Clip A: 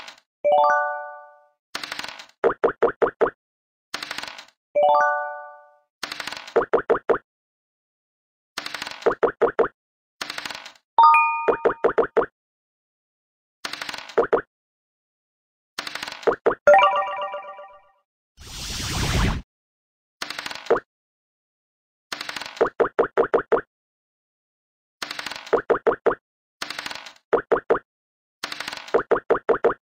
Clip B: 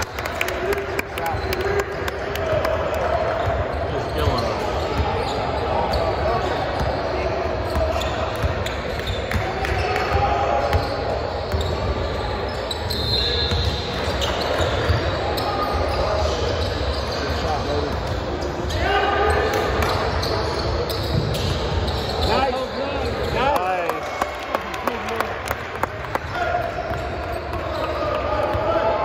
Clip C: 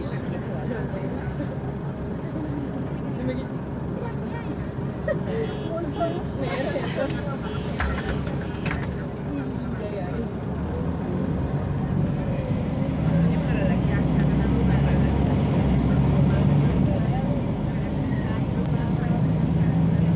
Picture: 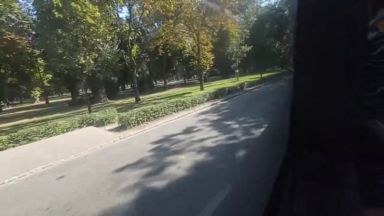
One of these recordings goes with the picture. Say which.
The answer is C